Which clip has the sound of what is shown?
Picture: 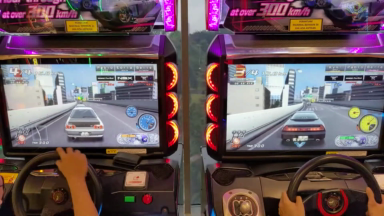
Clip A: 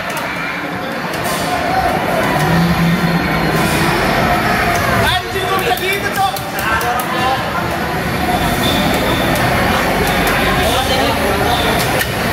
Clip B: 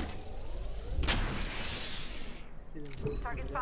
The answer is A